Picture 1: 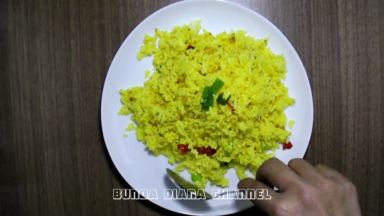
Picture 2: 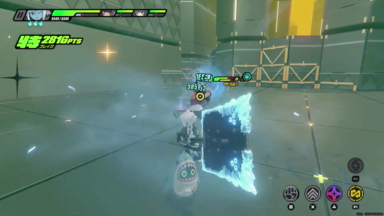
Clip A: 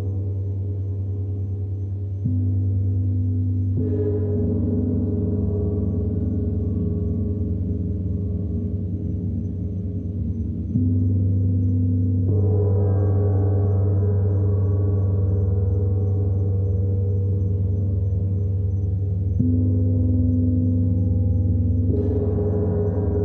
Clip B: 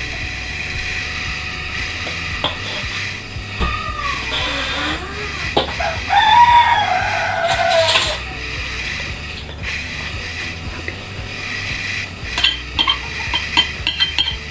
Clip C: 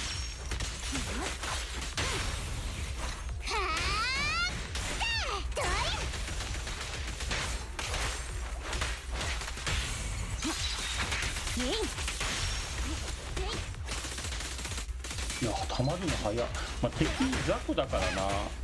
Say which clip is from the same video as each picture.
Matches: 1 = B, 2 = C